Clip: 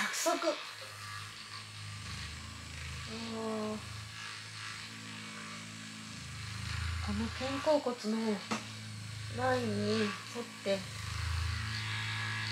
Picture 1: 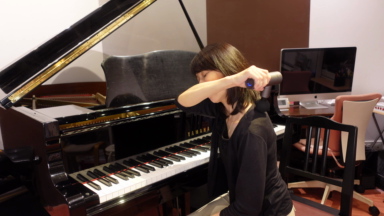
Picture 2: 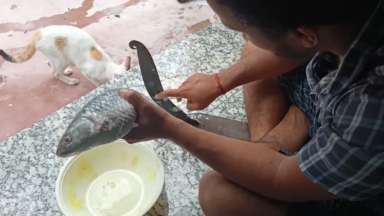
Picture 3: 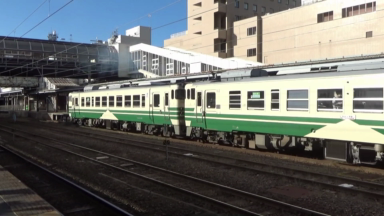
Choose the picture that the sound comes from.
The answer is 1